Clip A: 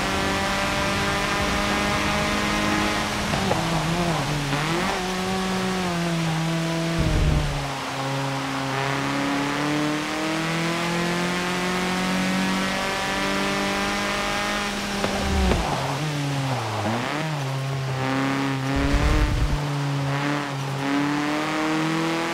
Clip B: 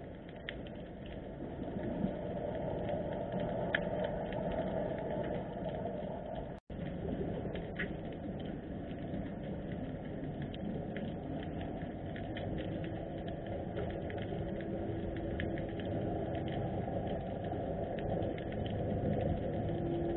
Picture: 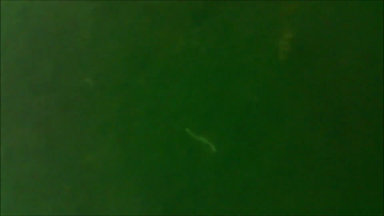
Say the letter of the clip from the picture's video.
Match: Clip B